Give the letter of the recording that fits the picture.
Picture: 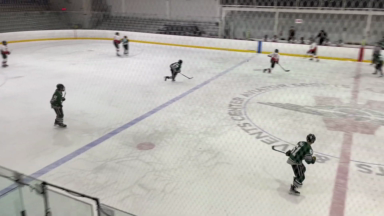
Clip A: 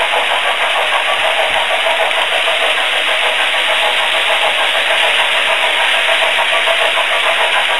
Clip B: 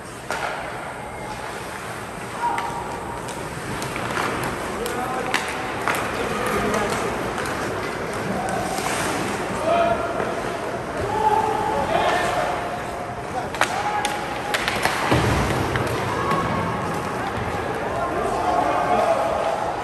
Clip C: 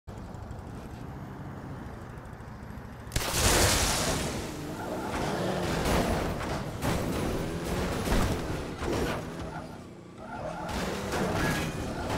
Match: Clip B